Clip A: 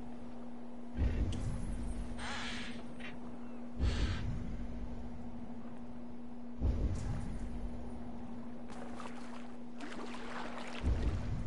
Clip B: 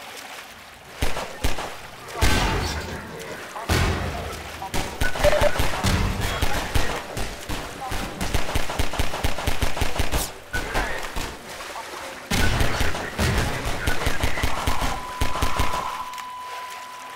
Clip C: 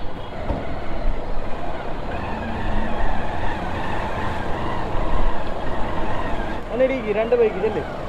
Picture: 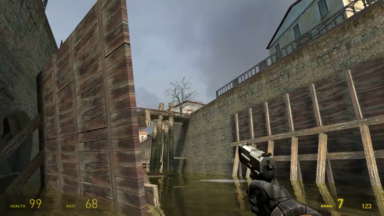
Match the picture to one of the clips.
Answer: B